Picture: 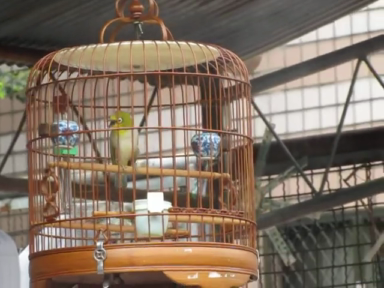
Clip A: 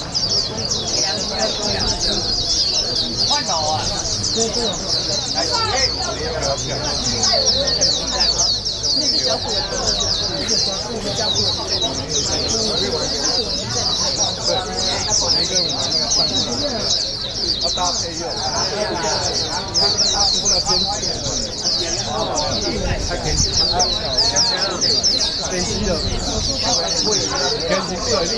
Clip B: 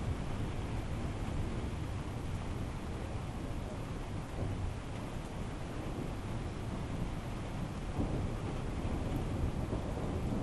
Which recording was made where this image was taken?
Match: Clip A